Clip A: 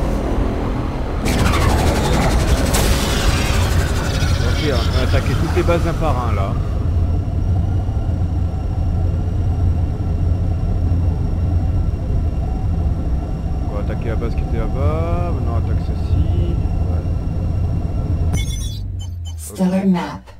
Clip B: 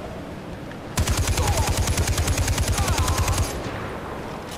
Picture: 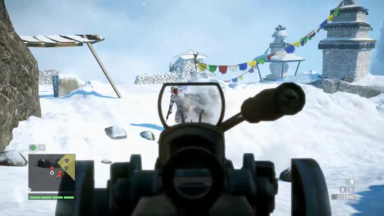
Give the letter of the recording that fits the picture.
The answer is B